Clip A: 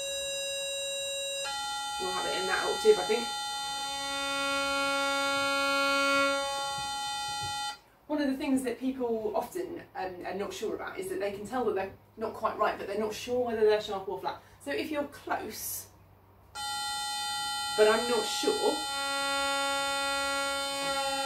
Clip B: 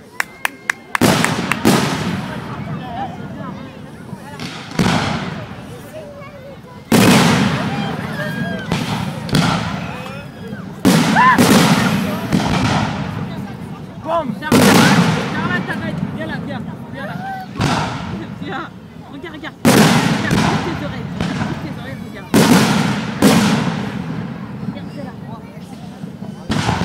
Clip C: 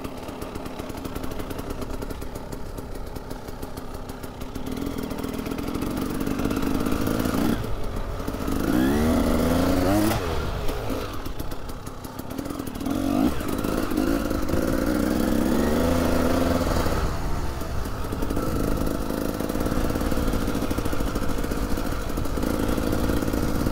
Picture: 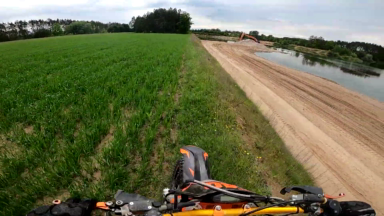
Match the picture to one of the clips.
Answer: C